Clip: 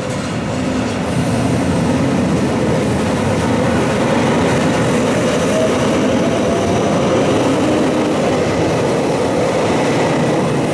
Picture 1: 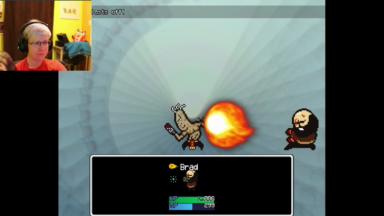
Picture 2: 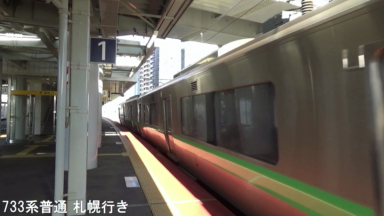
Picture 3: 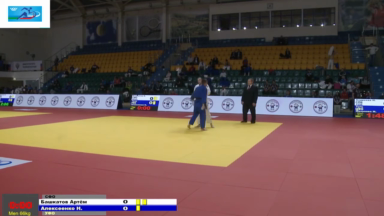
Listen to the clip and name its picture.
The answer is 2